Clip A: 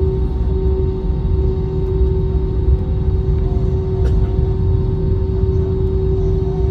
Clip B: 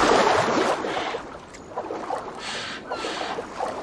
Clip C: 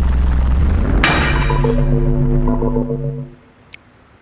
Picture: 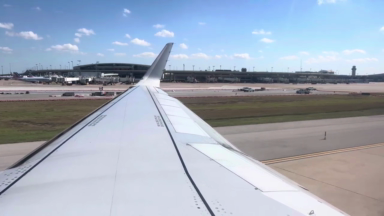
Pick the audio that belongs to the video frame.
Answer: A